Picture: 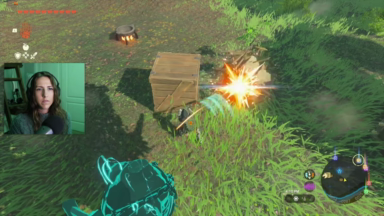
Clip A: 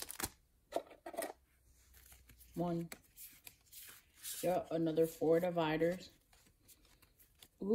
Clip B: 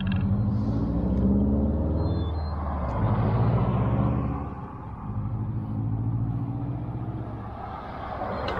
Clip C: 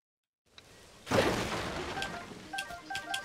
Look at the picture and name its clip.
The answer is C